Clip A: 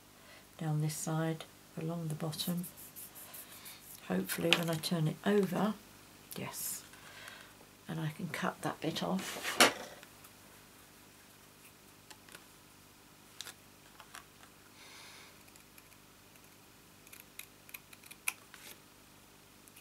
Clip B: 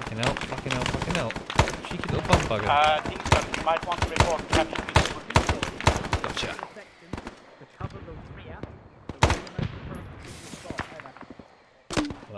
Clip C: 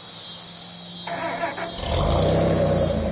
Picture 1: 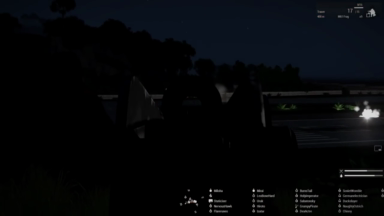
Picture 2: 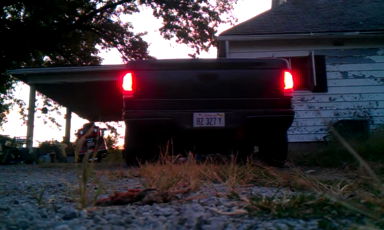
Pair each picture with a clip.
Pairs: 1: B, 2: C